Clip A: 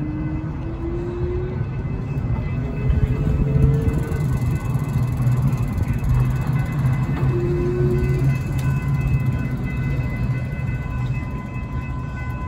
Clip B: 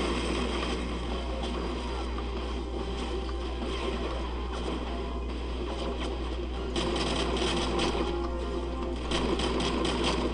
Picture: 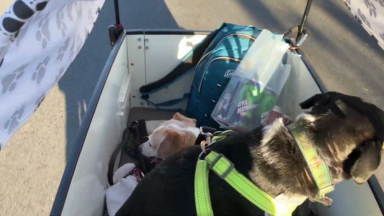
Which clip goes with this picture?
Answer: A